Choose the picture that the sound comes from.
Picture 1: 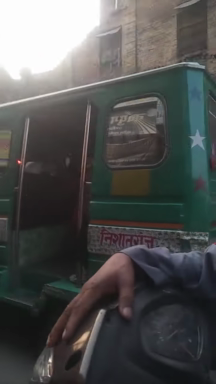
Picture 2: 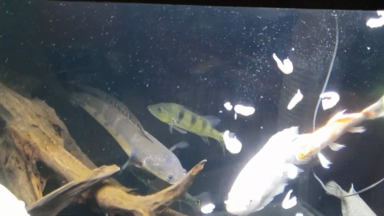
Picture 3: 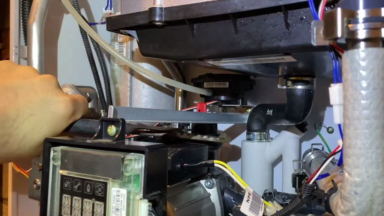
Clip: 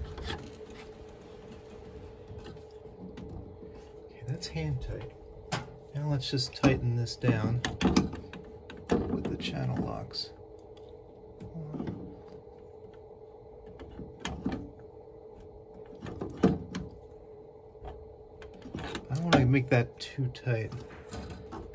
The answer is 3